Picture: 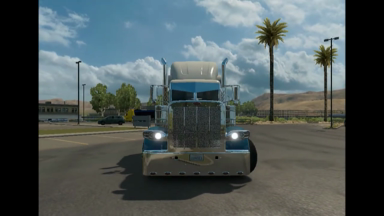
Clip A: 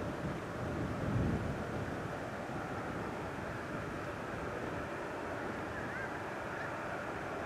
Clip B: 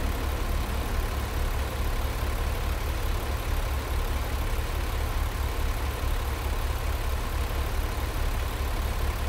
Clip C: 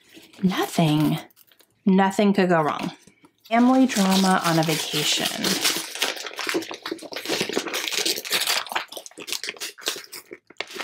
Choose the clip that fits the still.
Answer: B